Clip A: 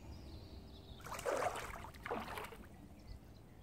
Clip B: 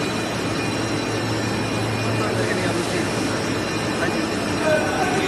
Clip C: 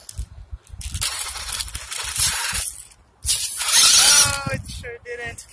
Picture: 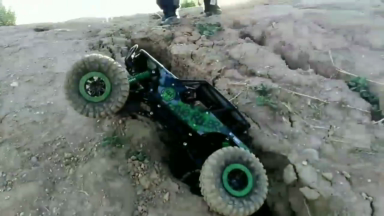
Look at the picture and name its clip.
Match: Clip C